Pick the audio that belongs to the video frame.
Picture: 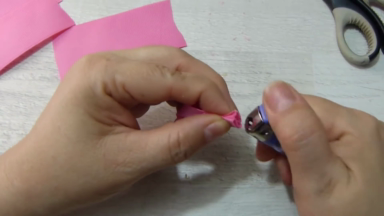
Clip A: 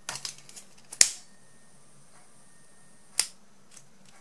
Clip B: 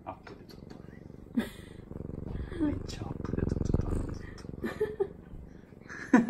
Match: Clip A